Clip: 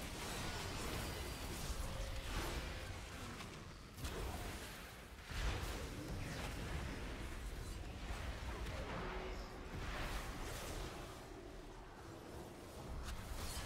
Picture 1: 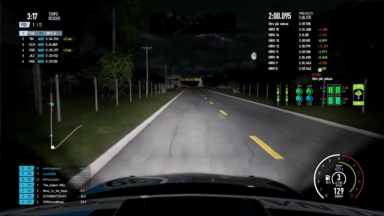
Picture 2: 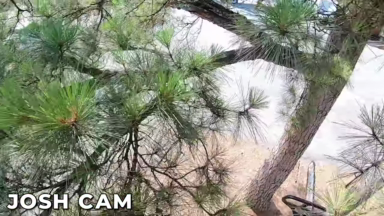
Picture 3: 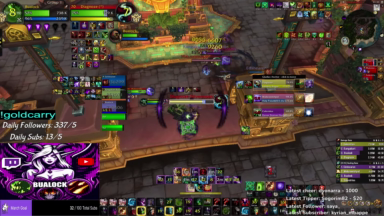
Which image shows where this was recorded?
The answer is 3